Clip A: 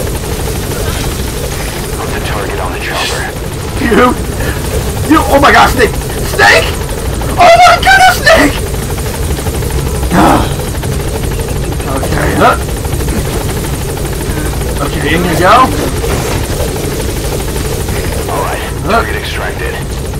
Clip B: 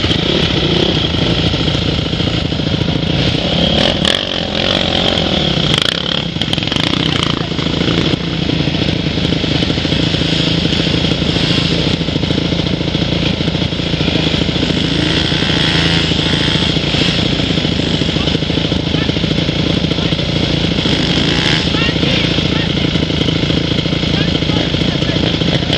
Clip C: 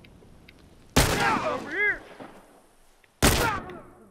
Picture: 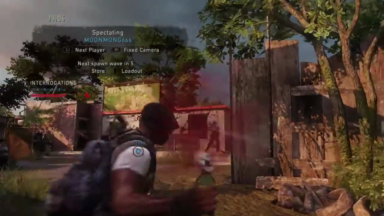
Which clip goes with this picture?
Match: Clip C